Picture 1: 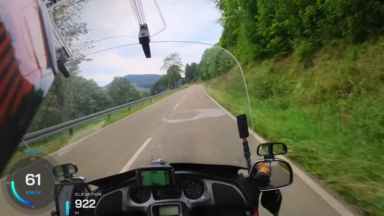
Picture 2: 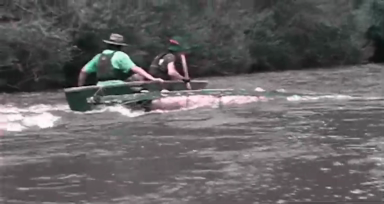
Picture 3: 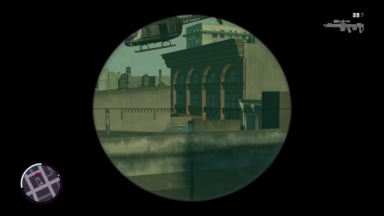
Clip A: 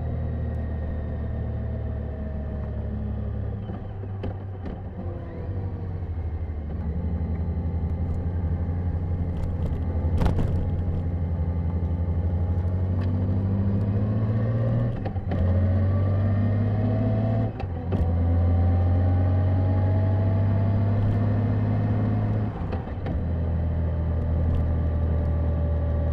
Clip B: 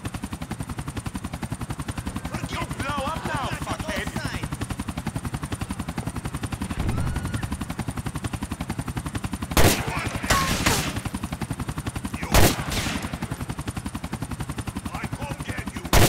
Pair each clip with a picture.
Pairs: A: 1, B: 3